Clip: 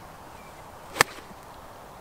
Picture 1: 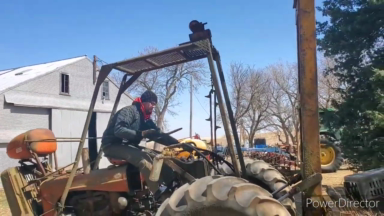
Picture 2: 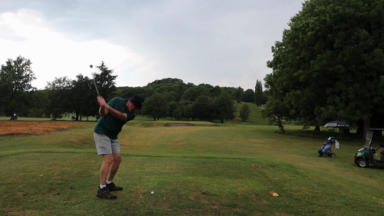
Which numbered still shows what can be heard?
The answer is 2